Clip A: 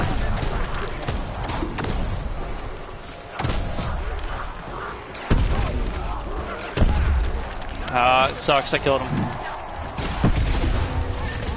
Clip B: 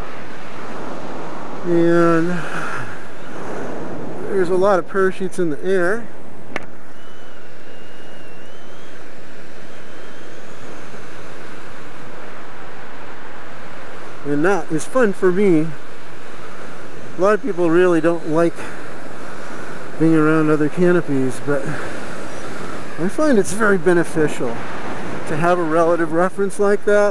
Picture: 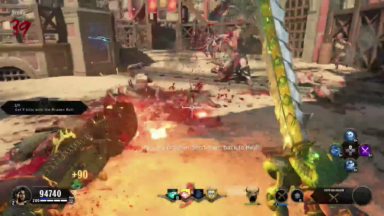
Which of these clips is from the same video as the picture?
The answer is A